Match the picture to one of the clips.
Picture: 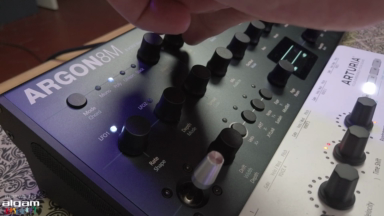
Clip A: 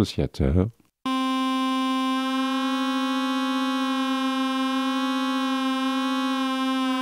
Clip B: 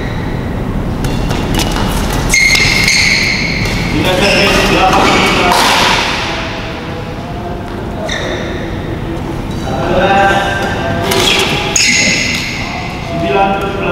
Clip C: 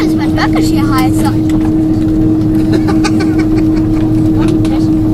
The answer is A